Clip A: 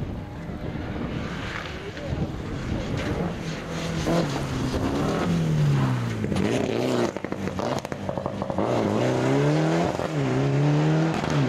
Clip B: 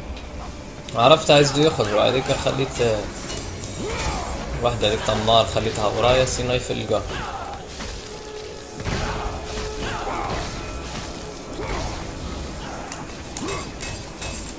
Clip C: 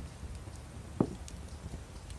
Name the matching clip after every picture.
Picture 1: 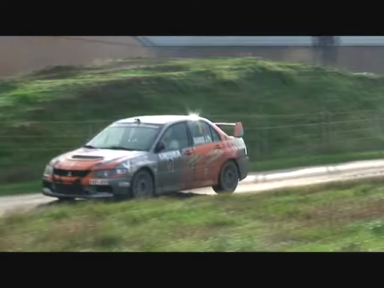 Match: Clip A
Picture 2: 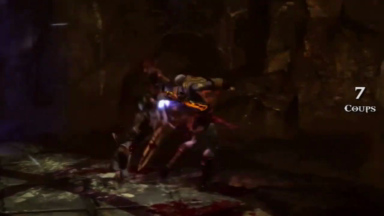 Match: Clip B